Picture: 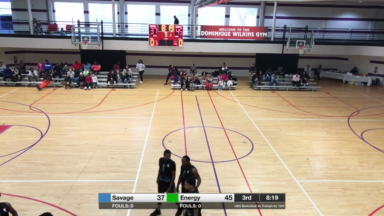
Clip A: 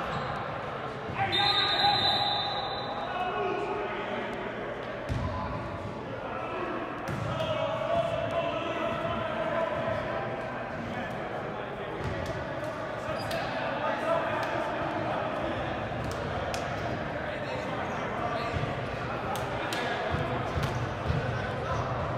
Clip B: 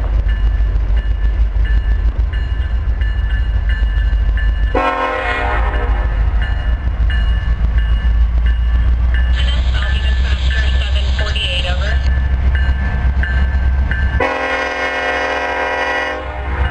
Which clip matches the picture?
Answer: A